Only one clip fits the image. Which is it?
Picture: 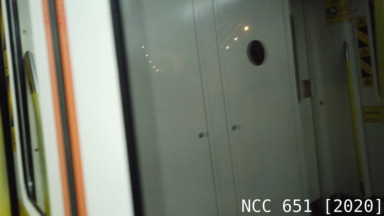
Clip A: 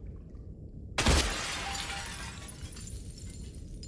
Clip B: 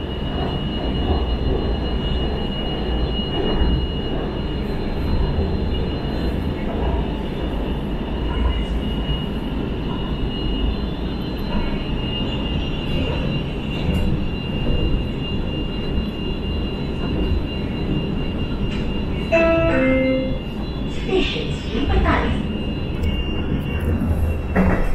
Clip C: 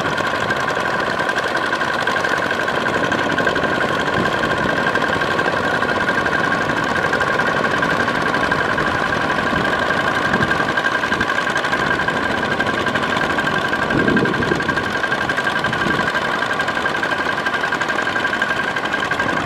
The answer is B